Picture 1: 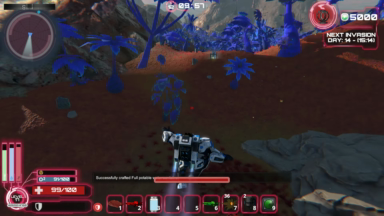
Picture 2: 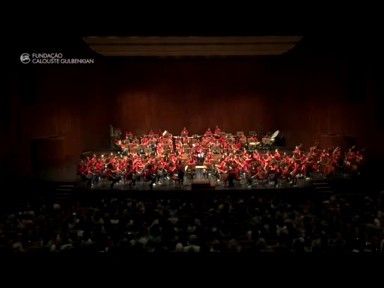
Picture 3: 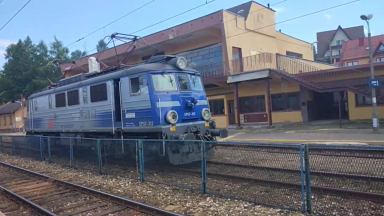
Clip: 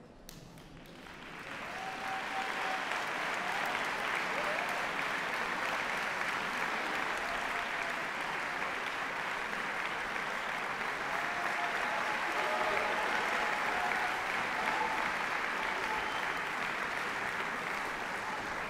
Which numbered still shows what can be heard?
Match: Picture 2